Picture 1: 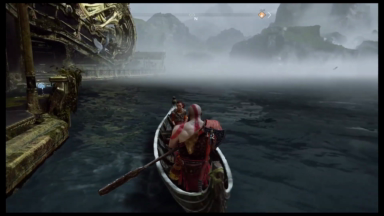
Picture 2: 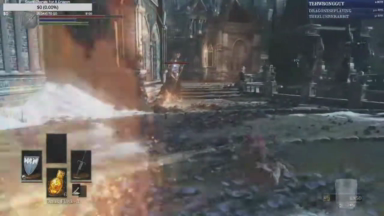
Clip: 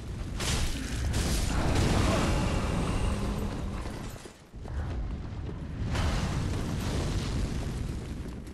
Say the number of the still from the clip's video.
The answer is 2